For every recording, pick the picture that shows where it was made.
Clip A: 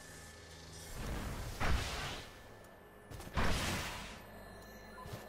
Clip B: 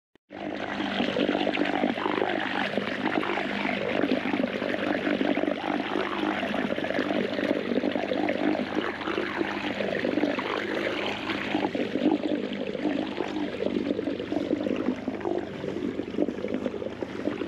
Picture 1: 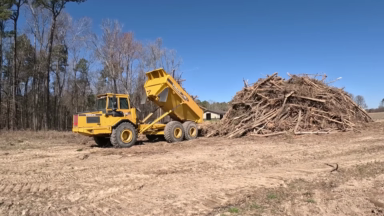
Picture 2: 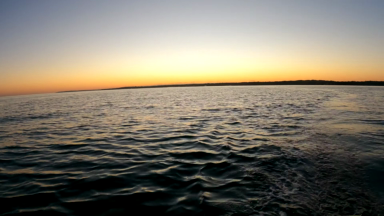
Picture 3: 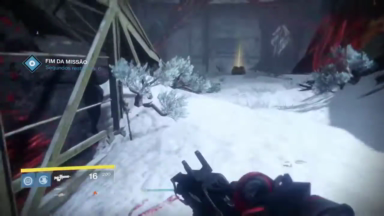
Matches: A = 3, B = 2